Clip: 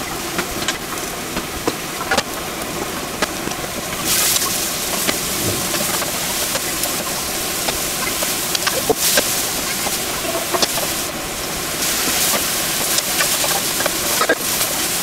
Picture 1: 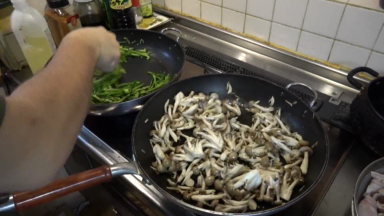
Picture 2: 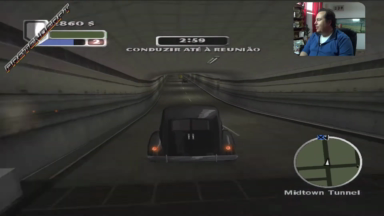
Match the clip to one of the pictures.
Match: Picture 1